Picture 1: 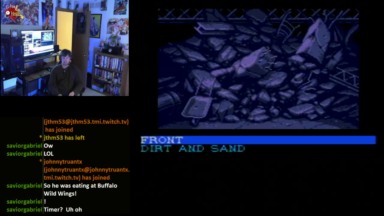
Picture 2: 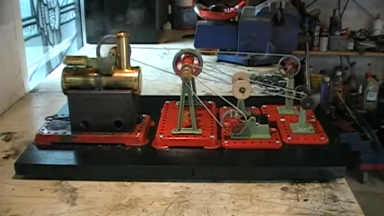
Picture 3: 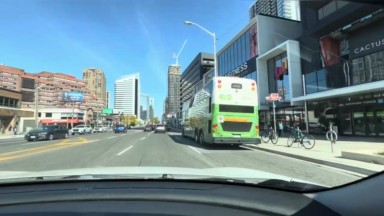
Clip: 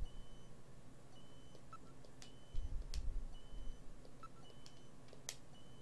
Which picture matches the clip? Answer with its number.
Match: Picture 1